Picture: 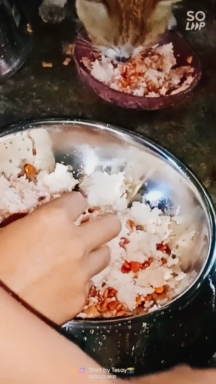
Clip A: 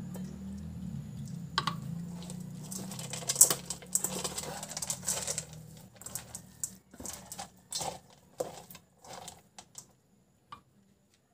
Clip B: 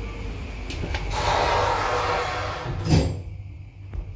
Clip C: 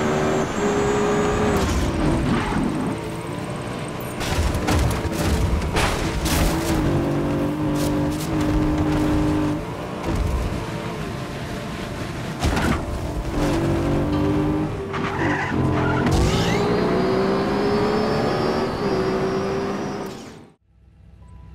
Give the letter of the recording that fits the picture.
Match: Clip A